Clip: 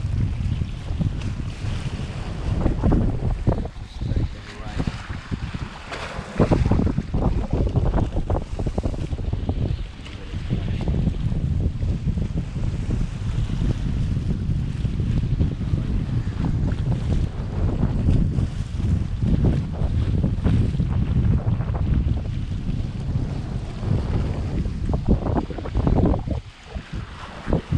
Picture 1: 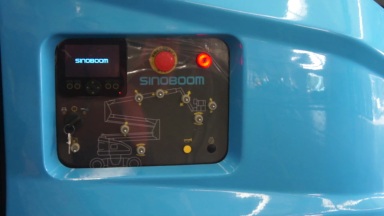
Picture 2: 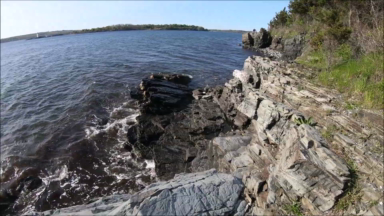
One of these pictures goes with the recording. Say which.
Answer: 2